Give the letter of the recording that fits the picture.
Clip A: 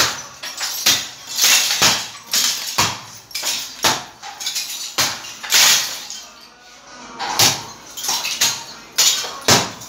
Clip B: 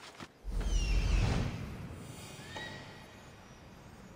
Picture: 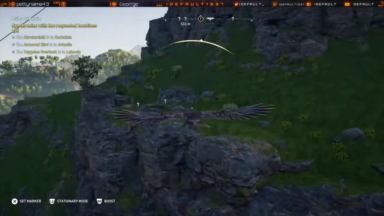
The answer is B